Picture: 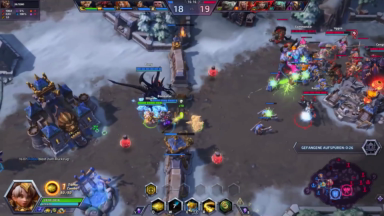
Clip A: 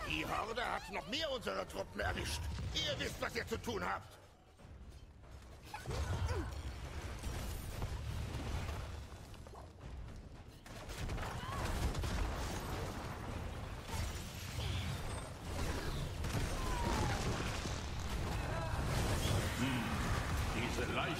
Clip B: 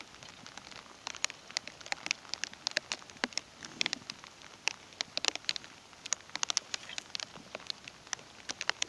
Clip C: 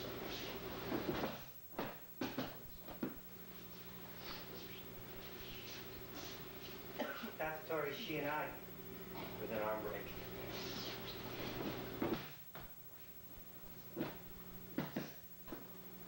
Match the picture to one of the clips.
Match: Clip A